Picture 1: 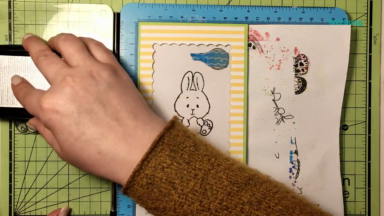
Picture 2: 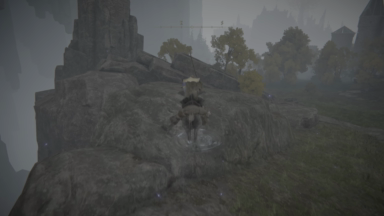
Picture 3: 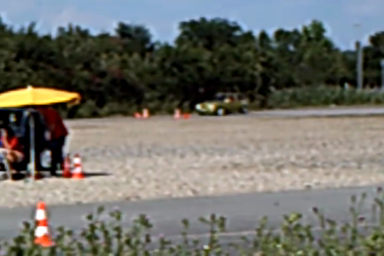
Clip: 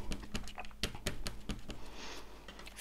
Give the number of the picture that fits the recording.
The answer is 1